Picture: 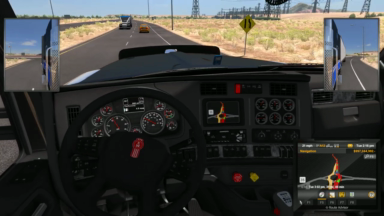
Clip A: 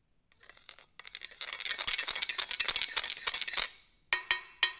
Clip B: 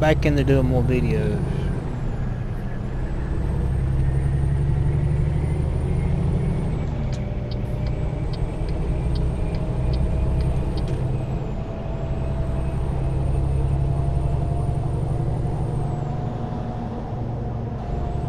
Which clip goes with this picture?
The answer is B